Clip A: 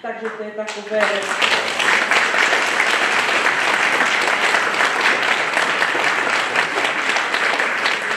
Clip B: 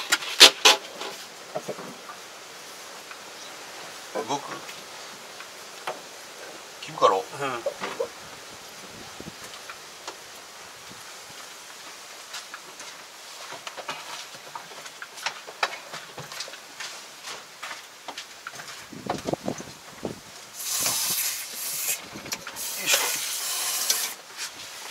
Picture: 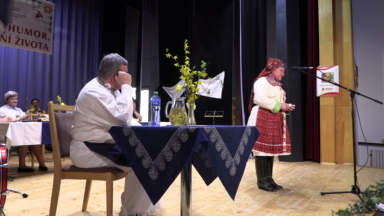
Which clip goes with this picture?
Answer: A